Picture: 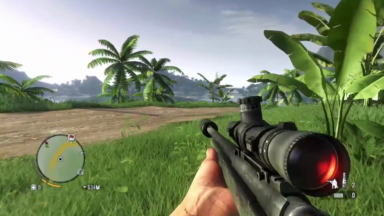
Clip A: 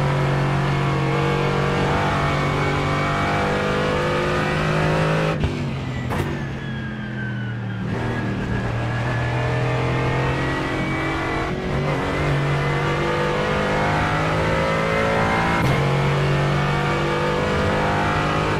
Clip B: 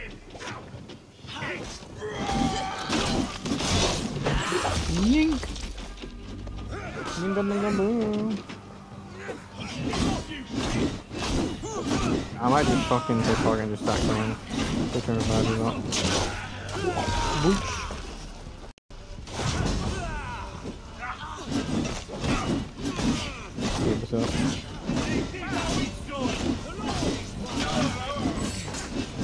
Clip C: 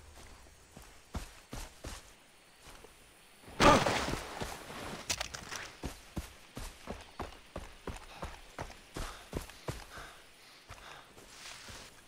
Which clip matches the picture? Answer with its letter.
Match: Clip C